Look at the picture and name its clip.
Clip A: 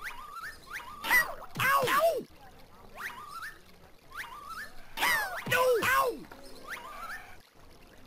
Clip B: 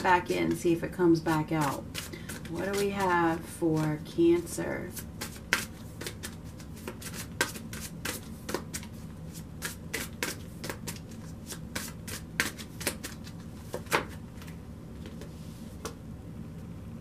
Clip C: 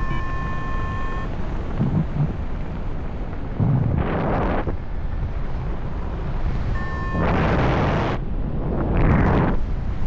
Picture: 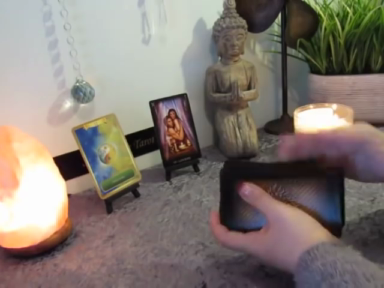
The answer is B